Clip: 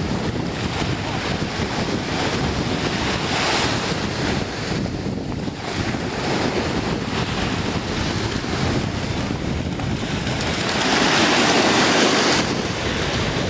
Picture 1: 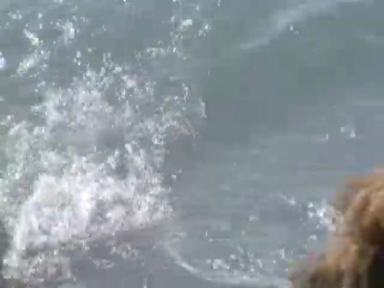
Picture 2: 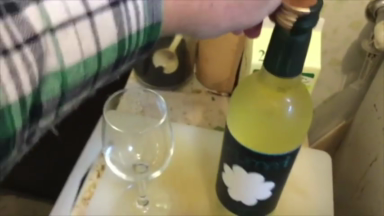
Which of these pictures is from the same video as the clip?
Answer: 1